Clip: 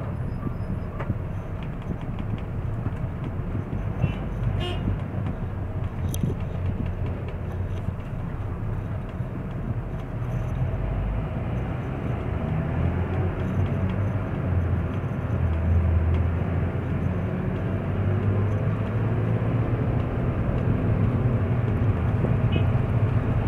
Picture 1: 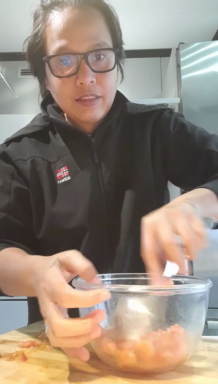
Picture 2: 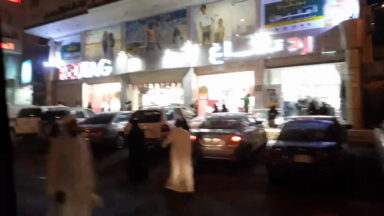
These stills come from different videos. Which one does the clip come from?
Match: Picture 2